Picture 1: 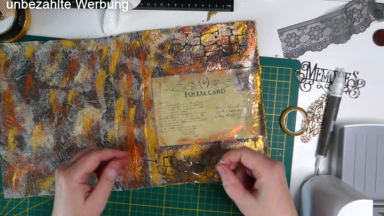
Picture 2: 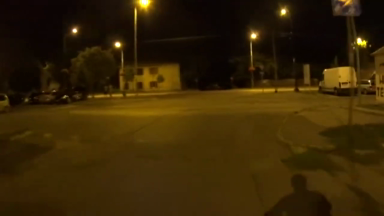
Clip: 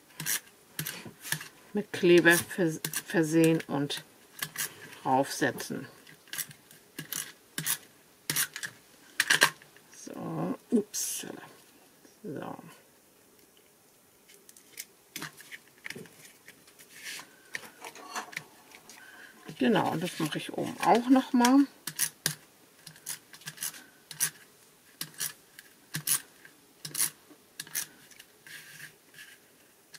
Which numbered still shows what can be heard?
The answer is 1